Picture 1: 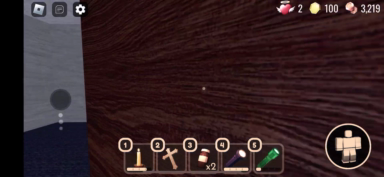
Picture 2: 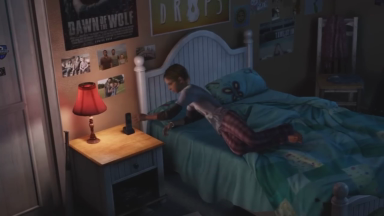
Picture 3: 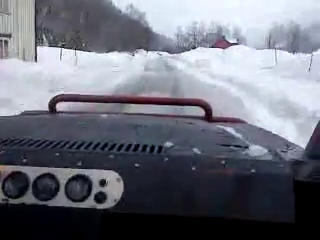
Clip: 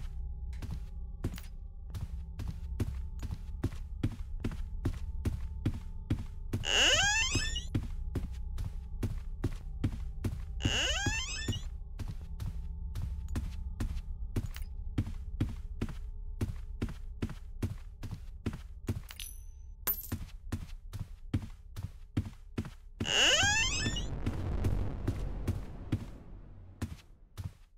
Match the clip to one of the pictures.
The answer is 1